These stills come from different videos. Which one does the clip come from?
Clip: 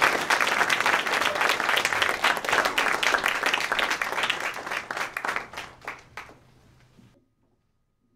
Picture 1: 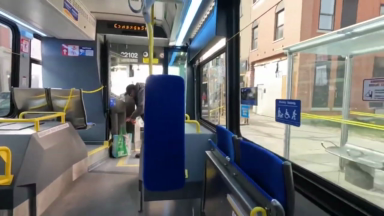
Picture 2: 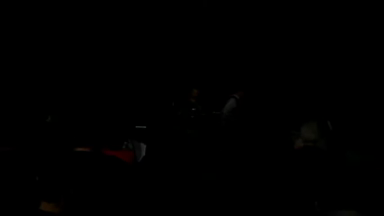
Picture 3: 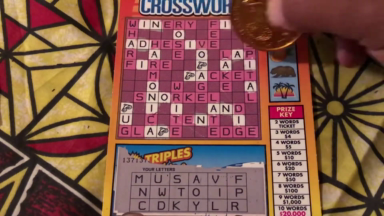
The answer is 2